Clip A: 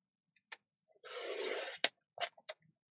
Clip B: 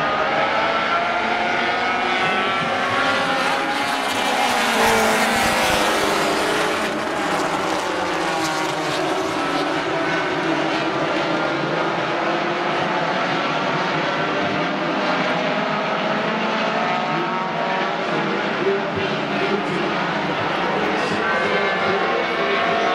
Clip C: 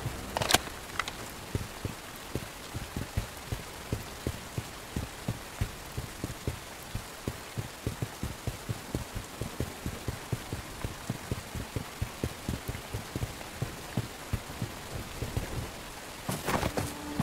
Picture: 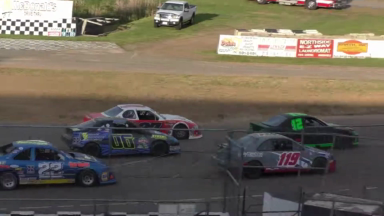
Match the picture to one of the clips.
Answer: B